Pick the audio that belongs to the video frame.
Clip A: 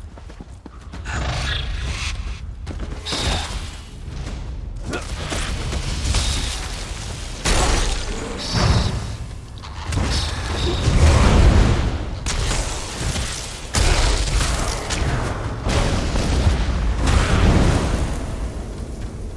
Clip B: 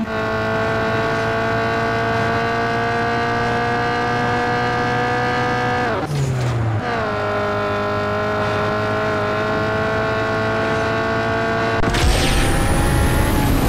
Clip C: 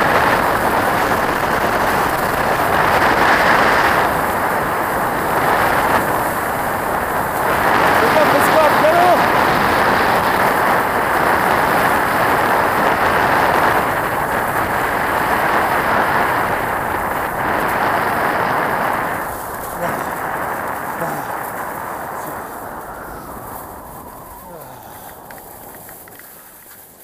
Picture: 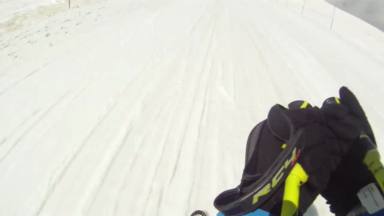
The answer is C